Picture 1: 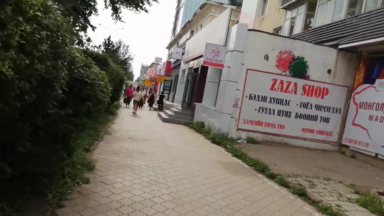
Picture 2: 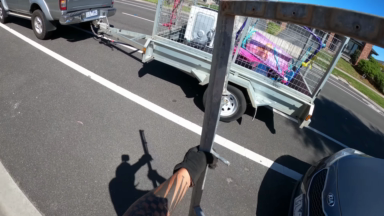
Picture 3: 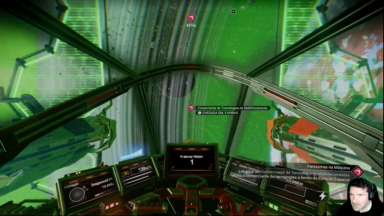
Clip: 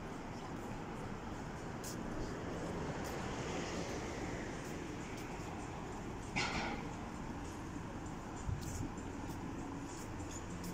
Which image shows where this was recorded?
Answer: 1